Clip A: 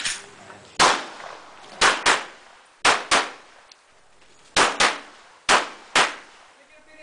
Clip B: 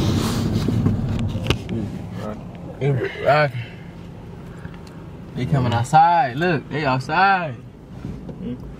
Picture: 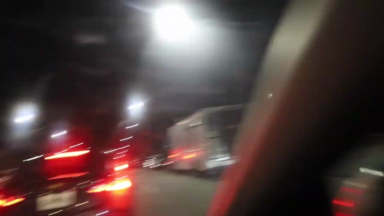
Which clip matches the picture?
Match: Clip B